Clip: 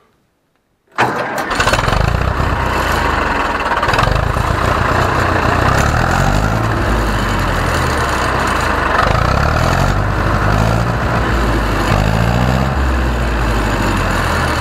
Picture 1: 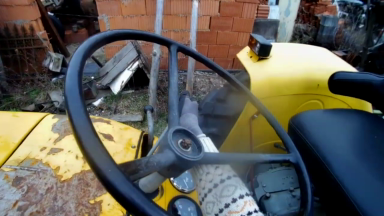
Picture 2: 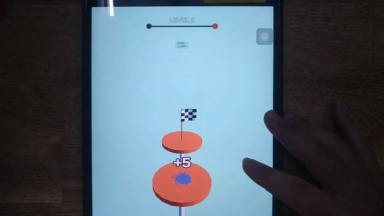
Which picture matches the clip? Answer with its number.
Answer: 1